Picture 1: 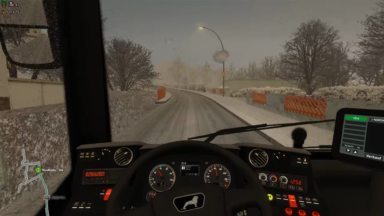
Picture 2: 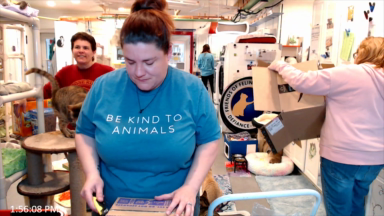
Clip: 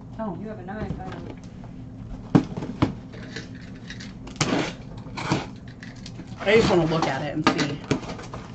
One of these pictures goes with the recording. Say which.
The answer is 2